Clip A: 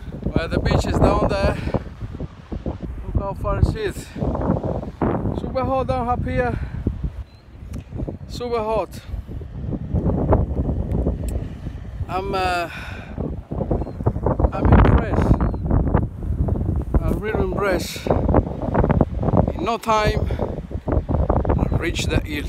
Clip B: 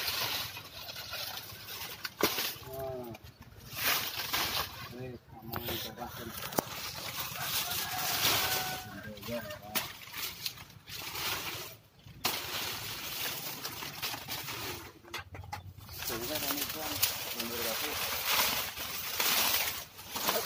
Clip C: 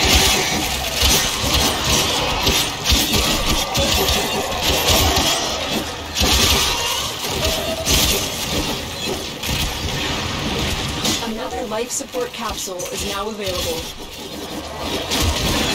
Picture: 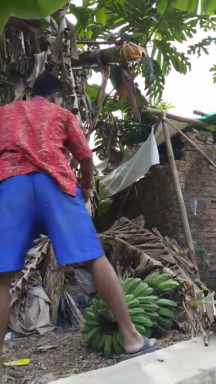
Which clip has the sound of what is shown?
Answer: B